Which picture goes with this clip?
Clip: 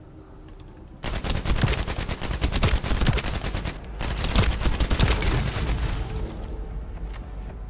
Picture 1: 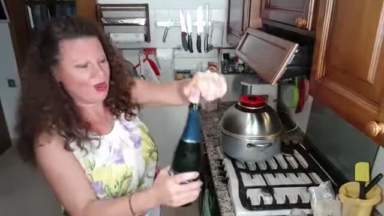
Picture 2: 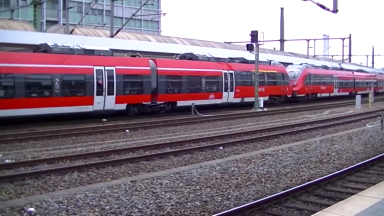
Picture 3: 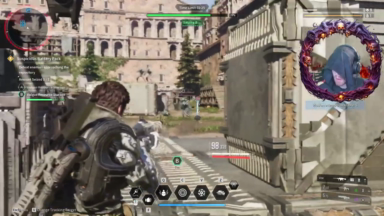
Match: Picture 3